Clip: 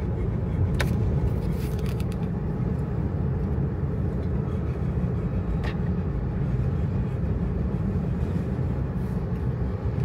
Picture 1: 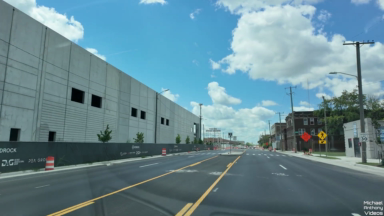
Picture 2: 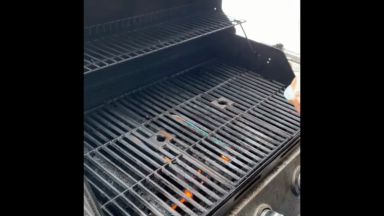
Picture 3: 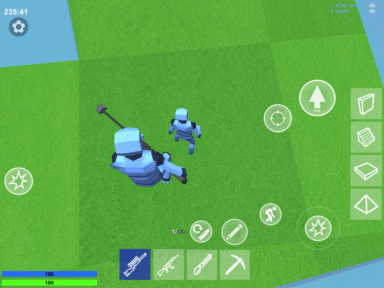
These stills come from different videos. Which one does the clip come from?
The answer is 1